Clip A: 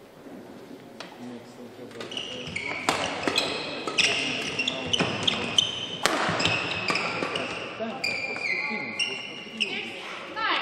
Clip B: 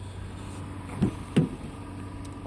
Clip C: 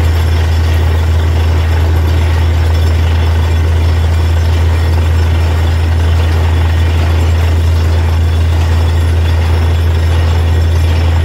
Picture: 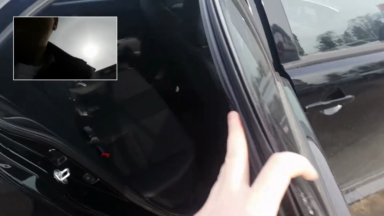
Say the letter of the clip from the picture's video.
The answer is B